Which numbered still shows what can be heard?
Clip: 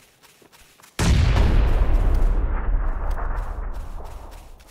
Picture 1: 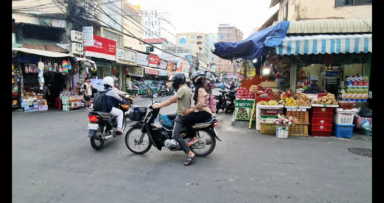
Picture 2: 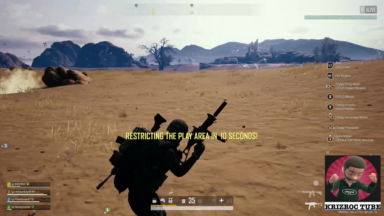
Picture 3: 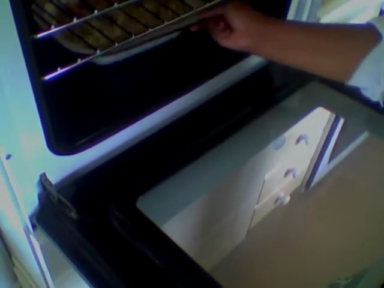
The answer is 2